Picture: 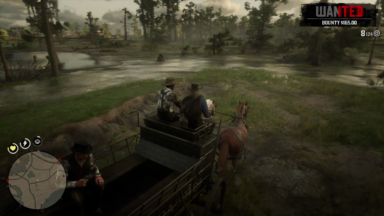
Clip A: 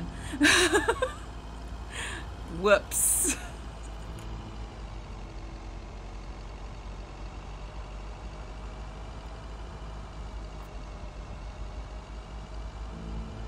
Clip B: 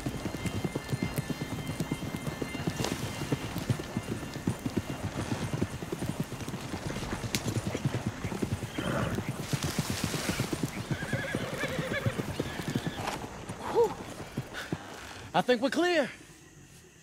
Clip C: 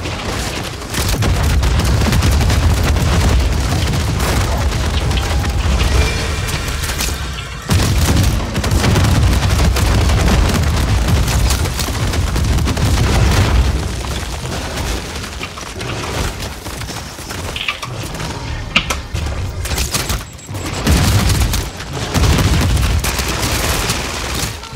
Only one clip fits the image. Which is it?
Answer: B